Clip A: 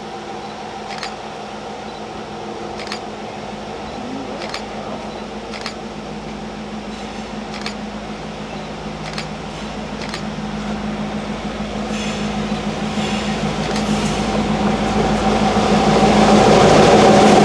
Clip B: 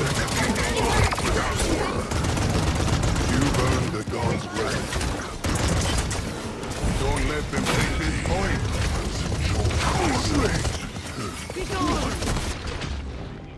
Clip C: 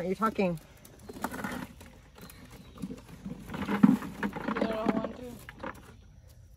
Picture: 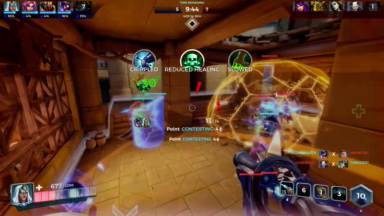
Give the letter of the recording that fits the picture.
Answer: B